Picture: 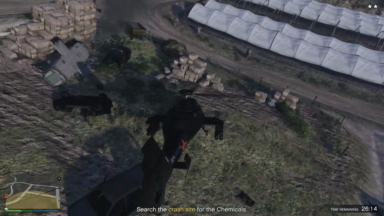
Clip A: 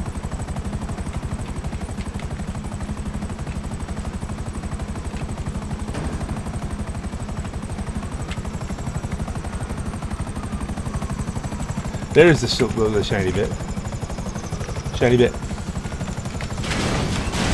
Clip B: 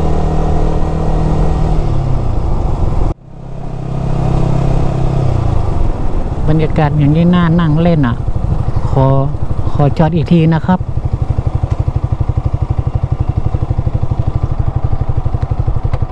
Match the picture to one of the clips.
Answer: A